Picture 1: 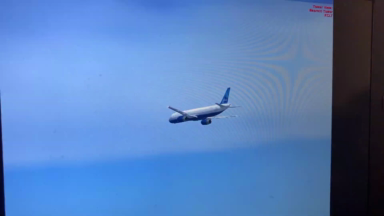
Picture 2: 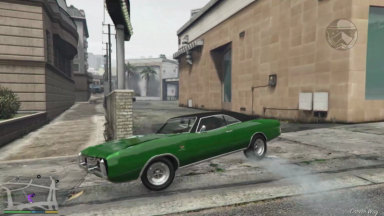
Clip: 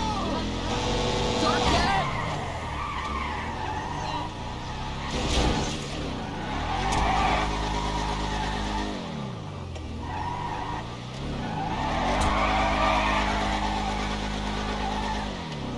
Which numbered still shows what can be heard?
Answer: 2